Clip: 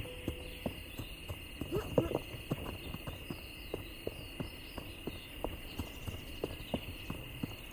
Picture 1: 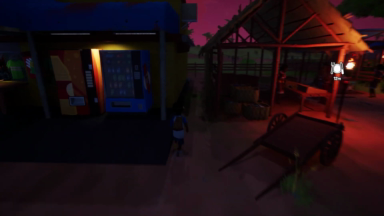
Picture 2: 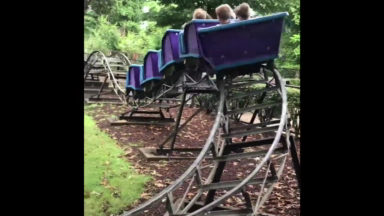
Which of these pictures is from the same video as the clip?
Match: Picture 1